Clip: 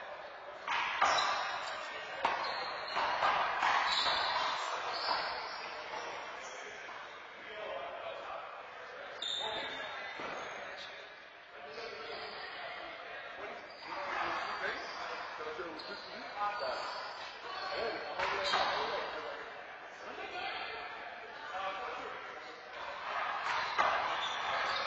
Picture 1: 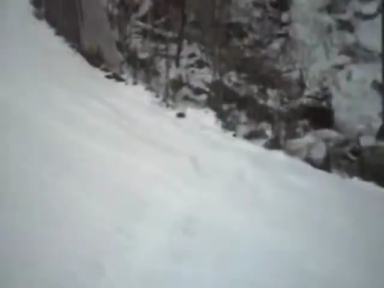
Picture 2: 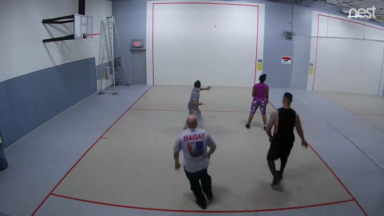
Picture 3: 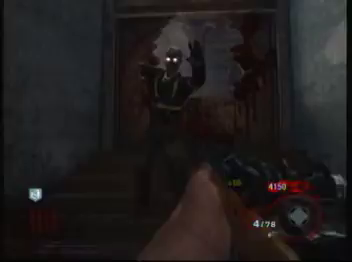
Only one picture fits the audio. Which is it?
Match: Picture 2